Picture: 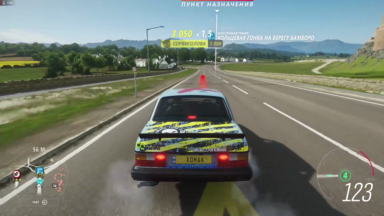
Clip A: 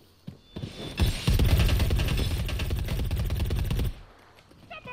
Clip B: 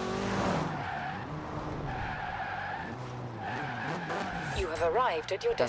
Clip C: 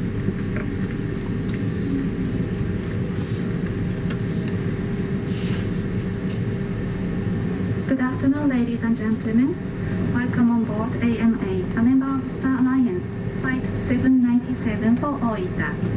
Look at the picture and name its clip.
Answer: B